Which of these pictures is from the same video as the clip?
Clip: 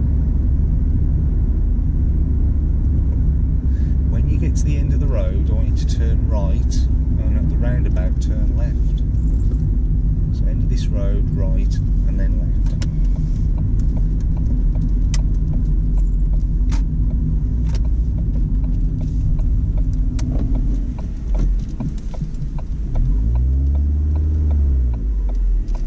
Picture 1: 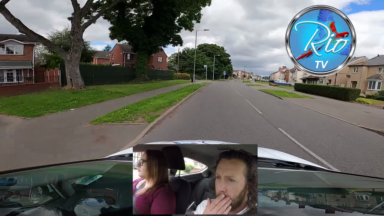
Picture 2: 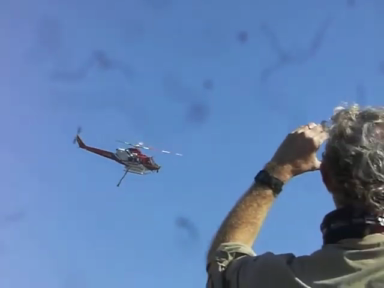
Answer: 1